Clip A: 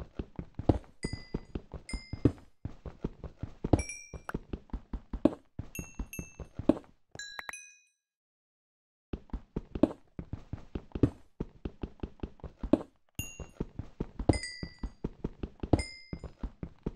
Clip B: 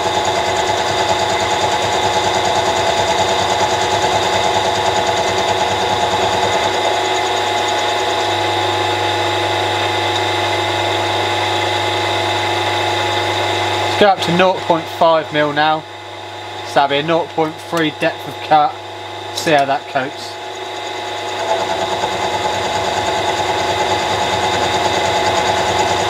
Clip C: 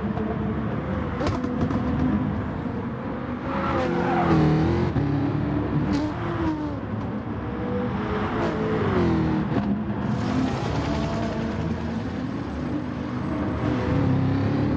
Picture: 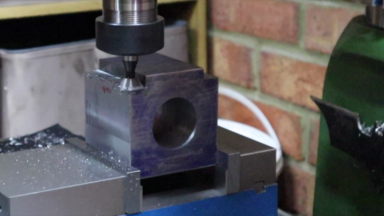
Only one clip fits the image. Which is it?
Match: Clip B